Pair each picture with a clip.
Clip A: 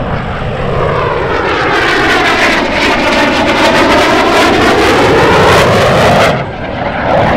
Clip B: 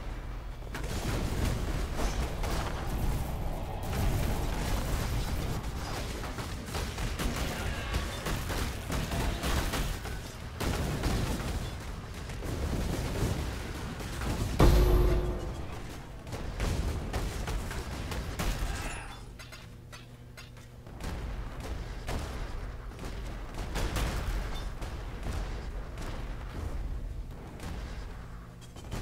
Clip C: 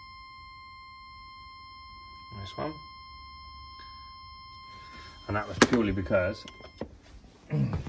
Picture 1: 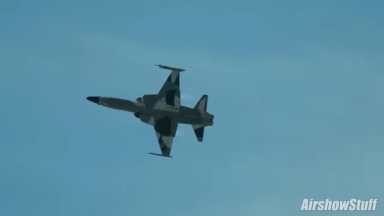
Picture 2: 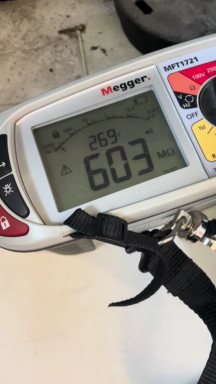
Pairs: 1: A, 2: C